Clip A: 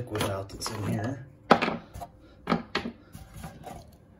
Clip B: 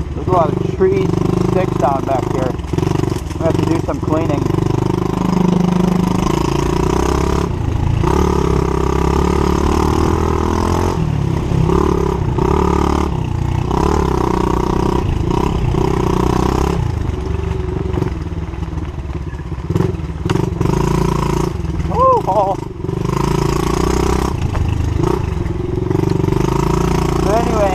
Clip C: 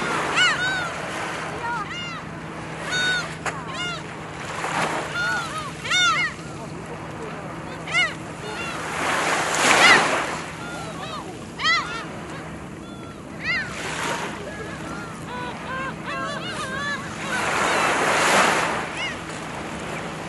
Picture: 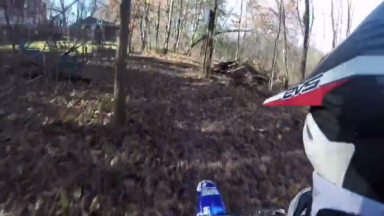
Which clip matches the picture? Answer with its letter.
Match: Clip B